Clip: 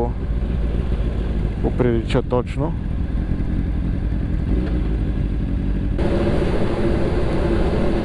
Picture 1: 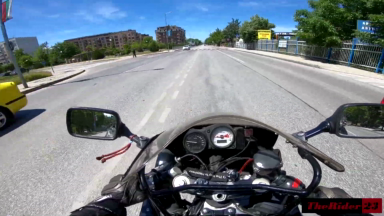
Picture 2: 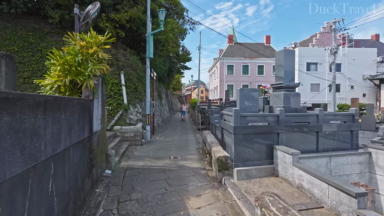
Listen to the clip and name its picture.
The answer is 1